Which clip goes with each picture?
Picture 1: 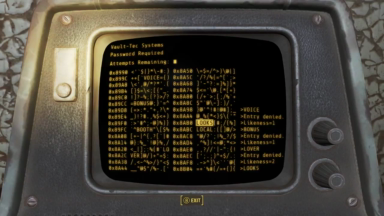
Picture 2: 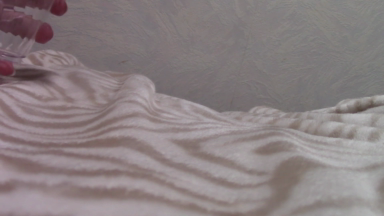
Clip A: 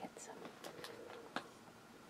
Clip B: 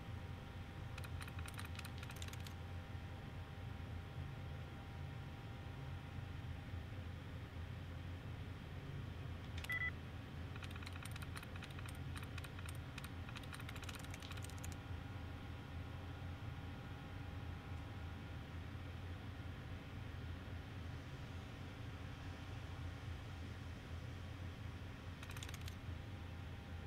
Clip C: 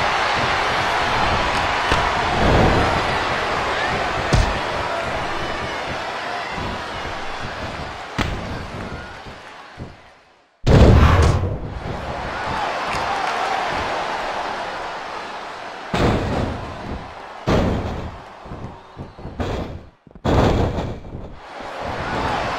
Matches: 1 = B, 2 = A